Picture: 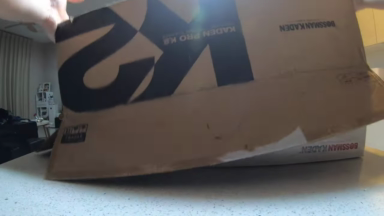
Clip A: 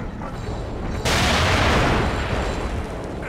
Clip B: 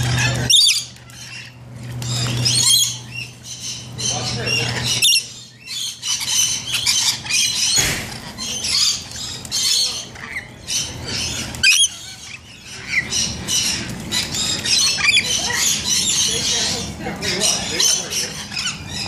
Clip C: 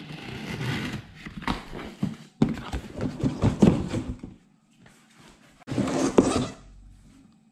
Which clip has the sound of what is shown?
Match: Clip C